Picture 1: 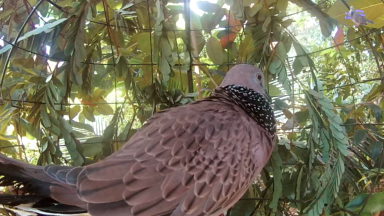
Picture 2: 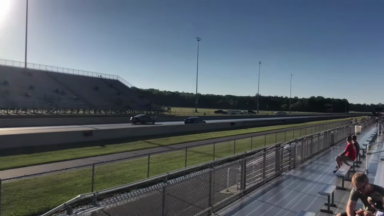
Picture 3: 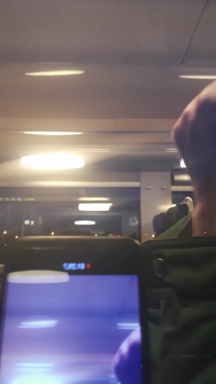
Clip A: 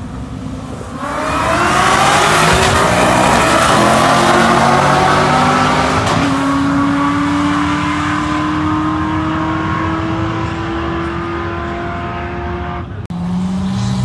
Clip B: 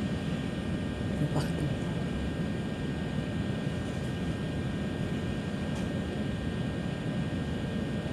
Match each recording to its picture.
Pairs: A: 2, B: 3